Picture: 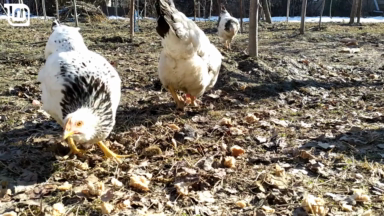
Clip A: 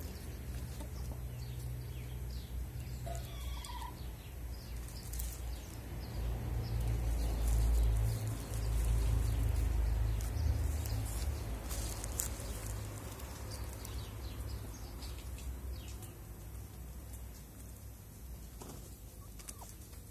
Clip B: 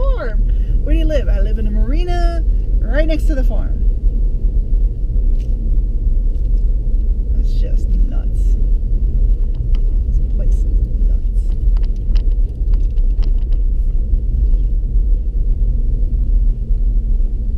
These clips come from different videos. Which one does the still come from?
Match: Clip A